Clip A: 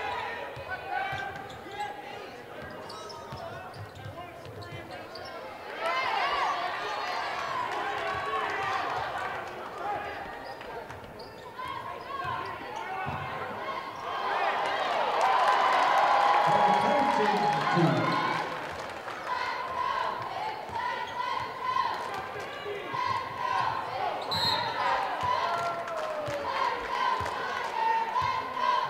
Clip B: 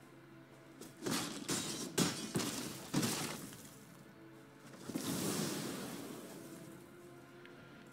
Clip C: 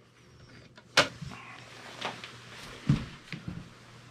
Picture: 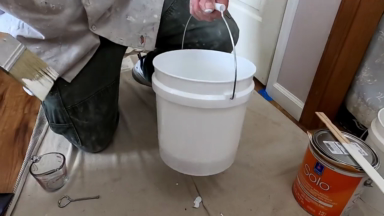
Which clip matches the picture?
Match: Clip C